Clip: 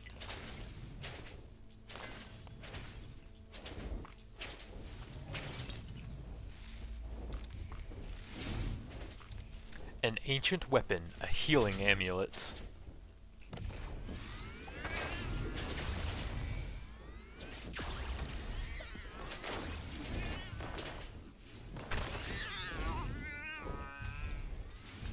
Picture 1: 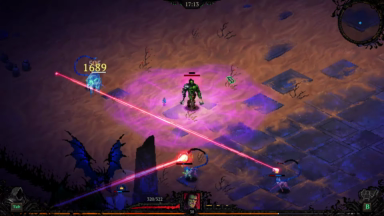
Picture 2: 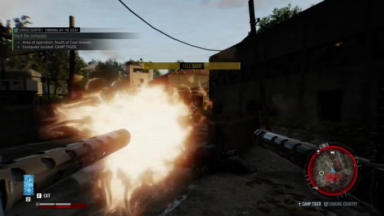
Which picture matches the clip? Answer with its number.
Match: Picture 1